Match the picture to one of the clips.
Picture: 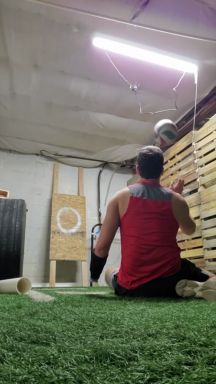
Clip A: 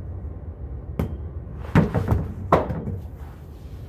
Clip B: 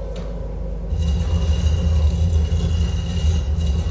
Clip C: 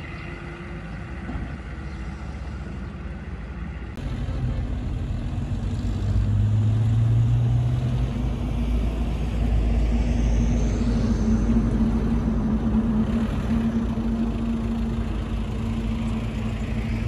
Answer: A